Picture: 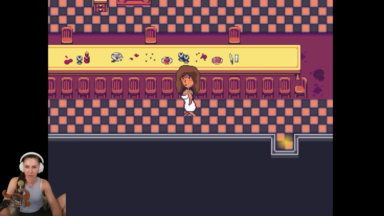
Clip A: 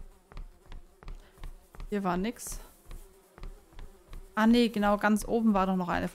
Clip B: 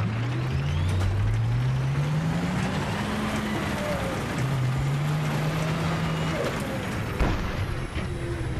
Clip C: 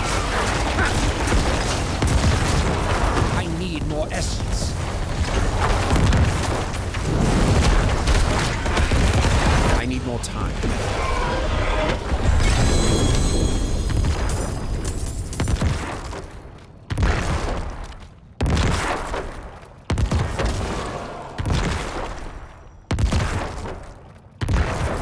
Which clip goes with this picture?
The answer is A